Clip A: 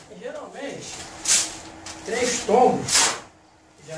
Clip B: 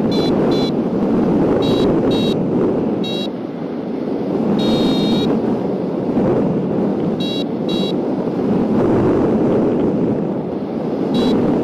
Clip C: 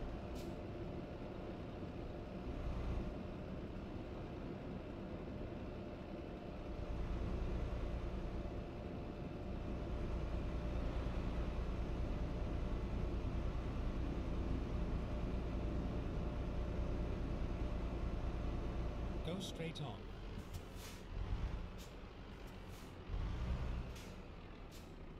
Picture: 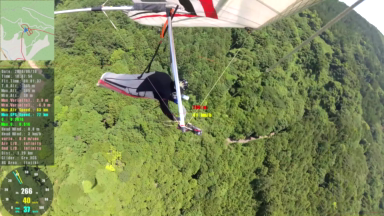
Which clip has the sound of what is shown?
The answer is B